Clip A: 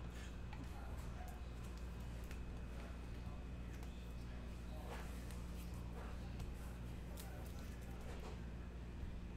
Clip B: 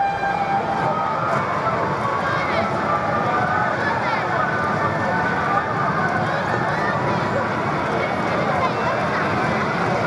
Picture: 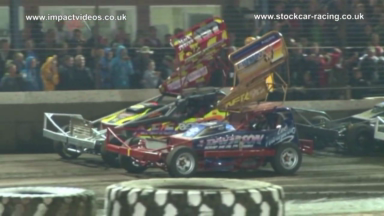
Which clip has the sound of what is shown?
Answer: B